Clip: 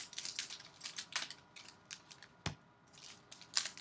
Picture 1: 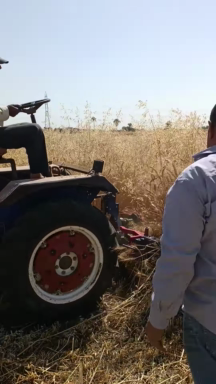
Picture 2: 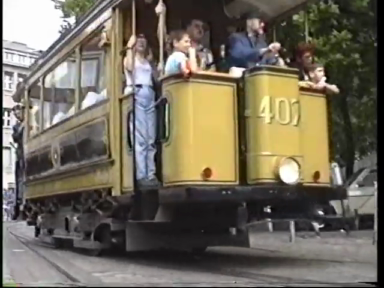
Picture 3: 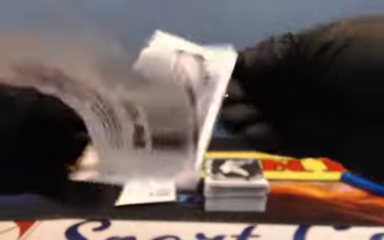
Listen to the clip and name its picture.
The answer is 3